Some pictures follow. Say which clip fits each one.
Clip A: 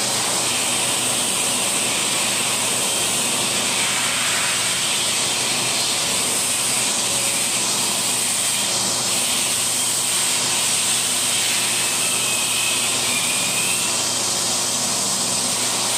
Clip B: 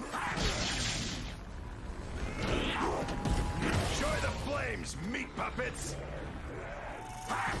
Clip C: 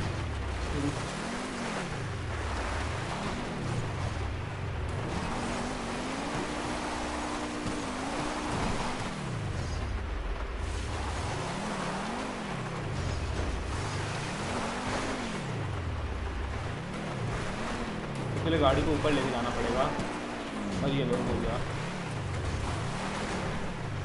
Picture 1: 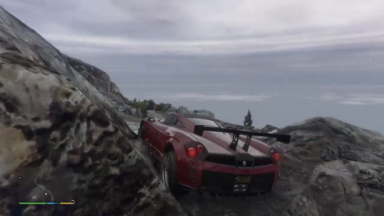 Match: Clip C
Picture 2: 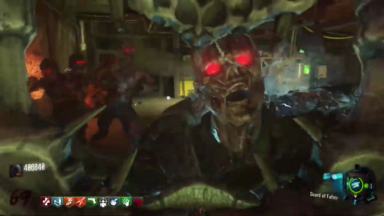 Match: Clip B